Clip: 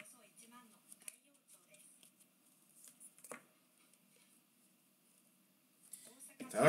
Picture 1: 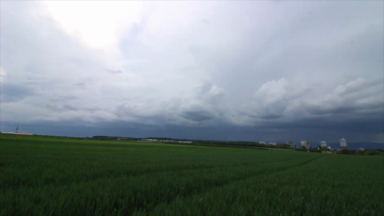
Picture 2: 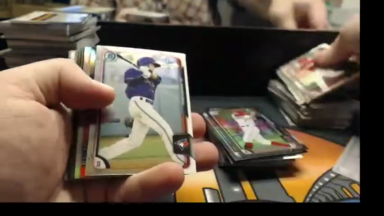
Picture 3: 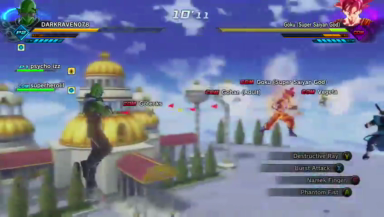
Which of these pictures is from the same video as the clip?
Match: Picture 2